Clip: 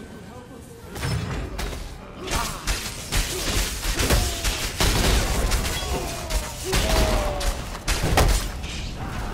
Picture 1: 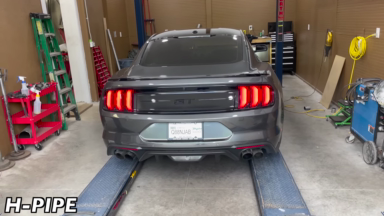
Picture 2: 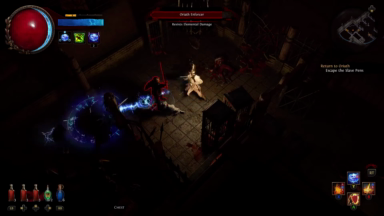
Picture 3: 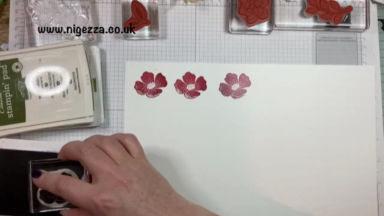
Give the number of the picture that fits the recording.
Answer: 2